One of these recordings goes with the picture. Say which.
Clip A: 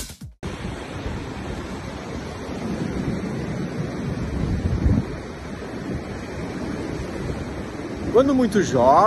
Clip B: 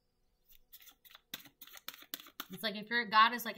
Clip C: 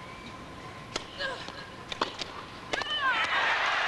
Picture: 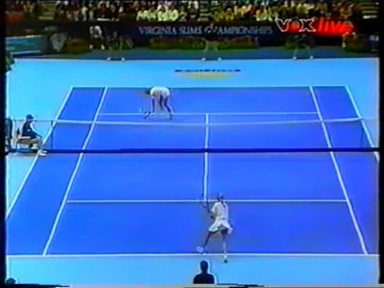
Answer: C